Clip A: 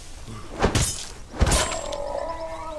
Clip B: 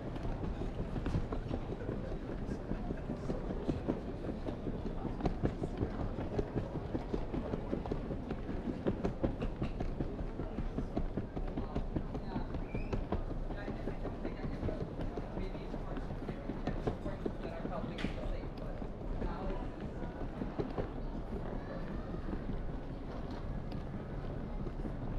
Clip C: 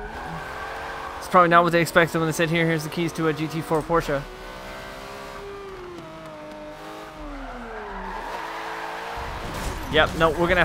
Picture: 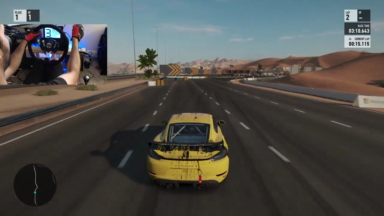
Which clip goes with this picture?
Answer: C